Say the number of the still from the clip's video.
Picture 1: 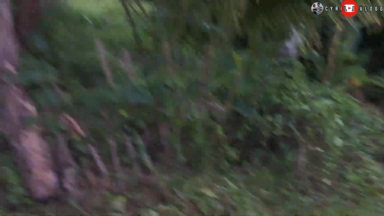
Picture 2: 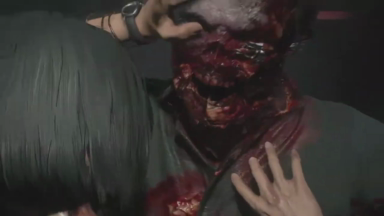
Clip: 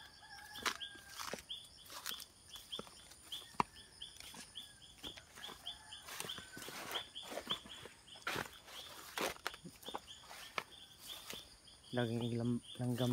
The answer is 1